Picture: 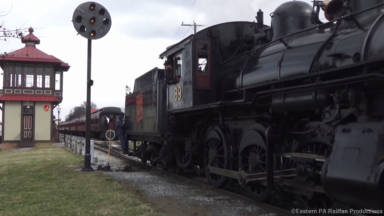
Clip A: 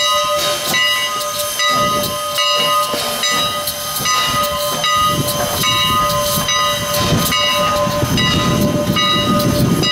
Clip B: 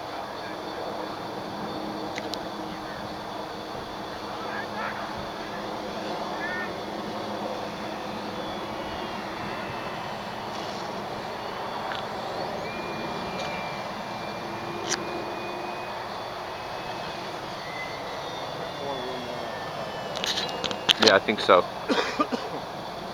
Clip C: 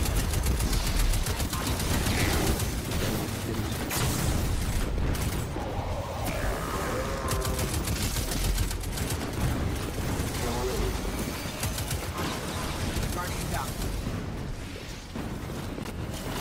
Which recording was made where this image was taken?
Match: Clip A